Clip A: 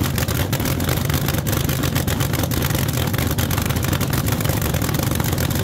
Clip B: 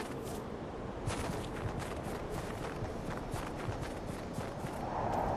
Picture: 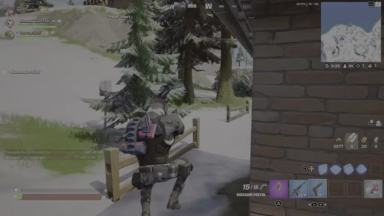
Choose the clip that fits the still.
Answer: B